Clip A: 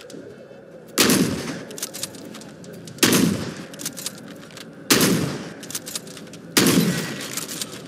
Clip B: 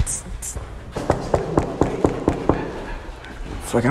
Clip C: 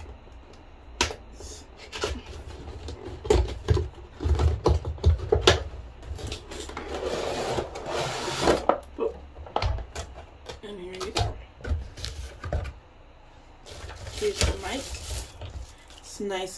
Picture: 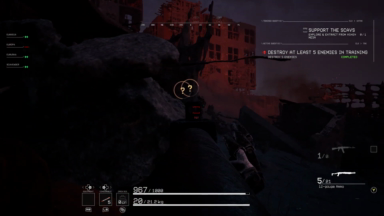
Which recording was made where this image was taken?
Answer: A